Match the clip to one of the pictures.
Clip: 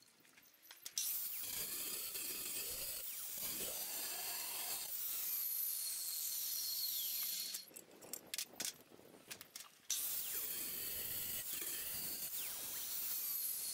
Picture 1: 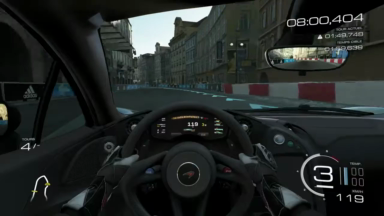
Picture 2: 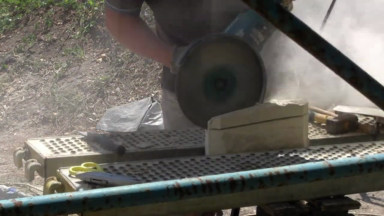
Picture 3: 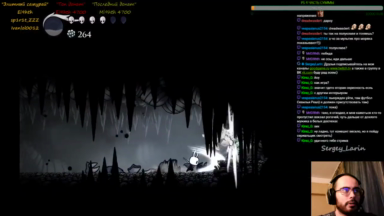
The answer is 2